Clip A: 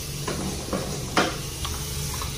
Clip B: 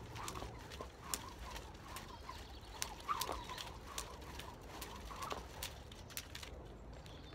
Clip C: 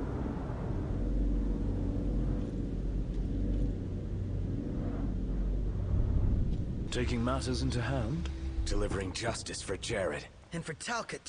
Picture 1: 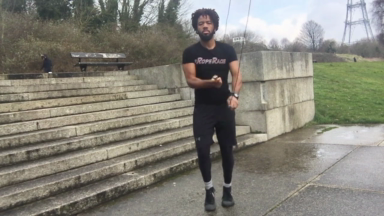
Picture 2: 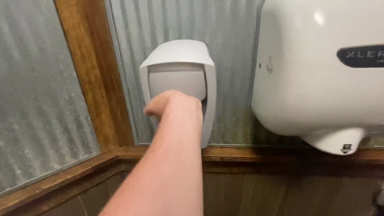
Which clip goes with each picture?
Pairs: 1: B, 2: A